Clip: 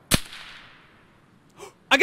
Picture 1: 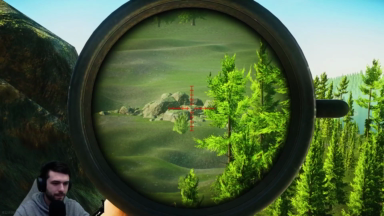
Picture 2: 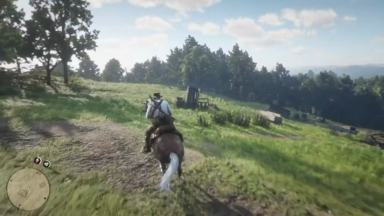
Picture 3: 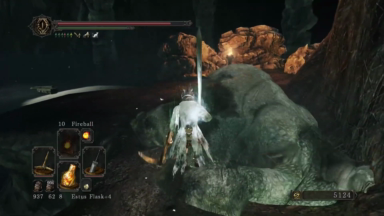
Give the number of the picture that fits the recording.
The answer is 1